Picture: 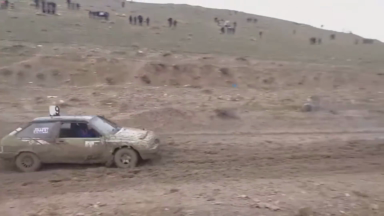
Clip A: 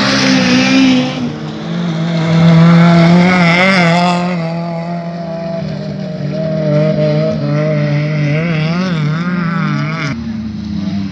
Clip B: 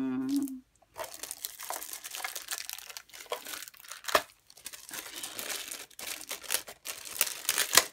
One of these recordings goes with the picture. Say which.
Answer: A